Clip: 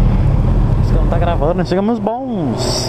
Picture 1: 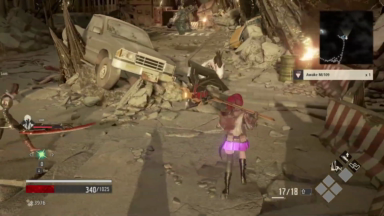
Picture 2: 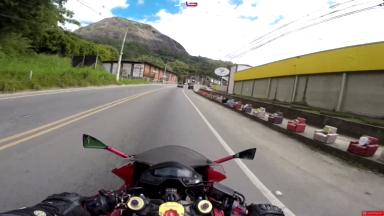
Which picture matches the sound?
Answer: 2